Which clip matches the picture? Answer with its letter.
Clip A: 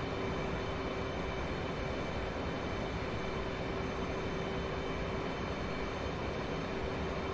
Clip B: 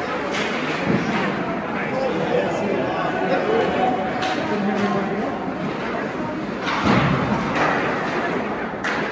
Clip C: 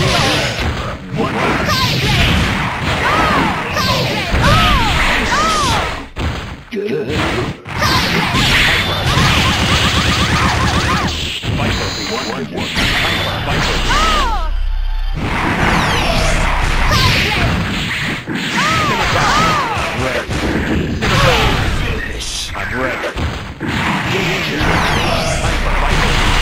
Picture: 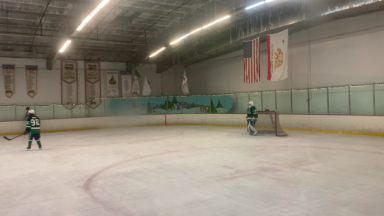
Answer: B